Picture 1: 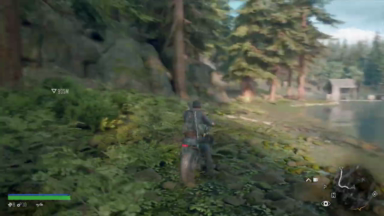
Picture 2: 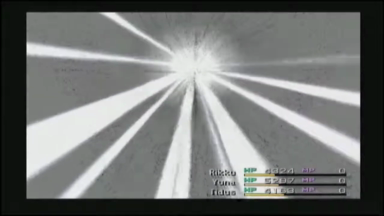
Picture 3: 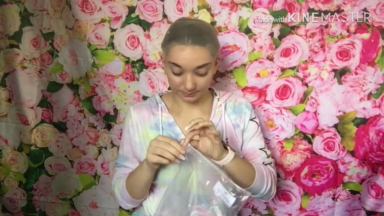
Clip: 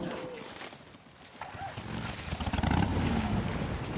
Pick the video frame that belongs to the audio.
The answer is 1